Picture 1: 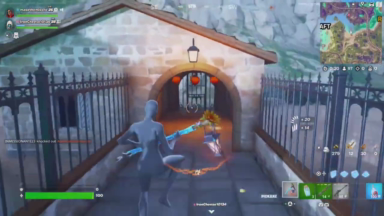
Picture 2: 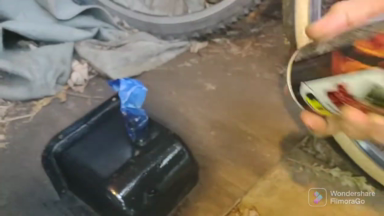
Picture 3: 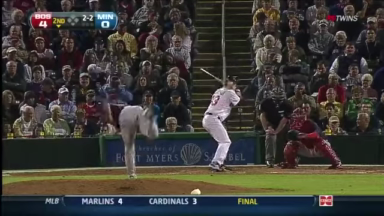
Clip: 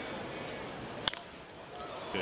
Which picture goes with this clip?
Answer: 3